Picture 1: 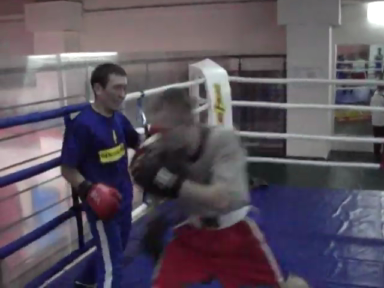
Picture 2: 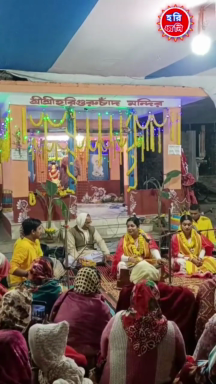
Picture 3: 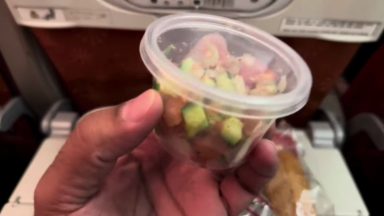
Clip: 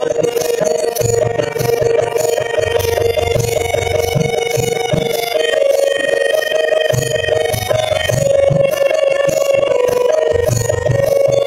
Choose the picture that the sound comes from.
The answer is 2